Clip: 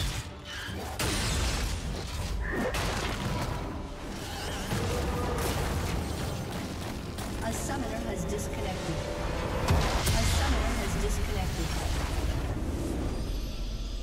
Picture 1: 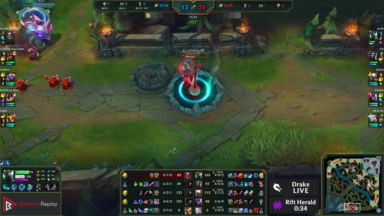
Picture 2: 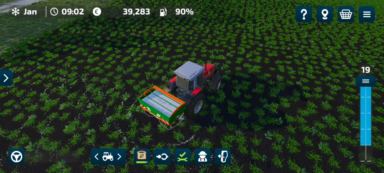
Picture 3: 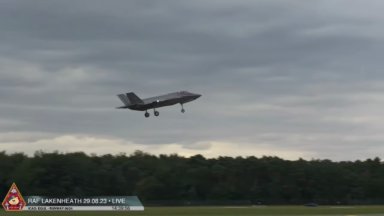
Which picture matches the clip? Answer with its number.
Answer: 1